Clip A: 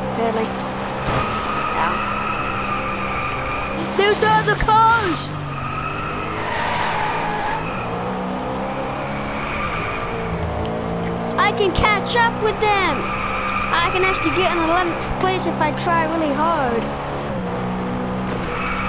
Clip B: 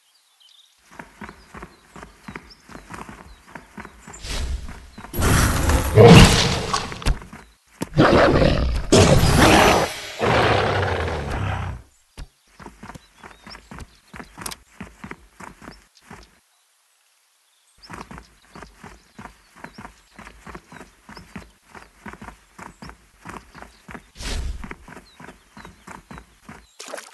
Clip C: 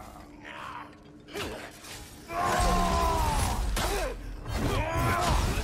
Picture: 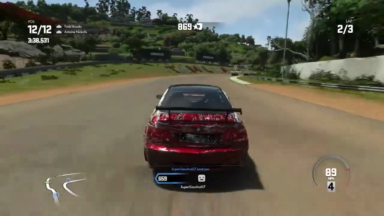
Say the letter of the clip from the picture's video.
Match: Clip A